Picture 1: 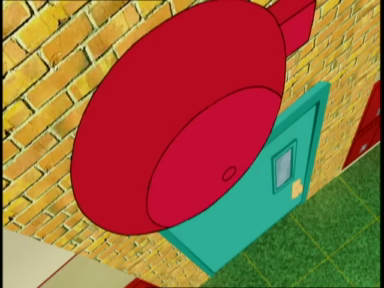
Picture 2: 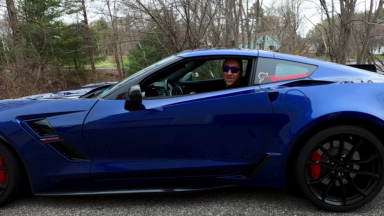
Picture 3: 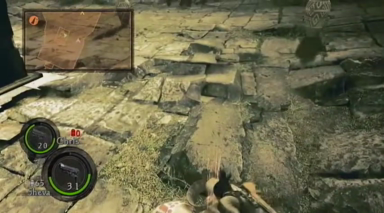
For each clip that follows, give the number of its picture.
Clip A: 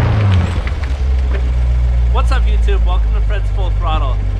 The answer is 2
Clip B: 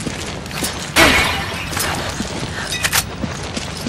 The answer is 3